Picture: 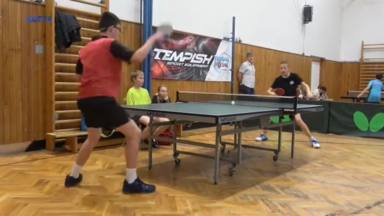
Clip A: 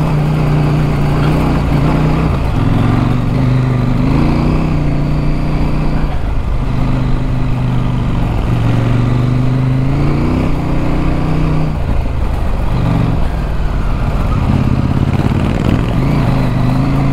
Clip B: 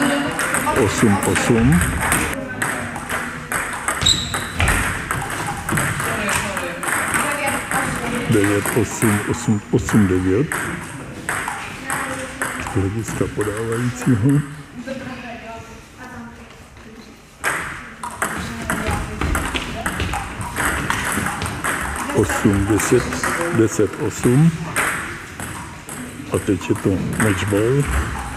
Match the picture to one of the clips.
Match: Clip B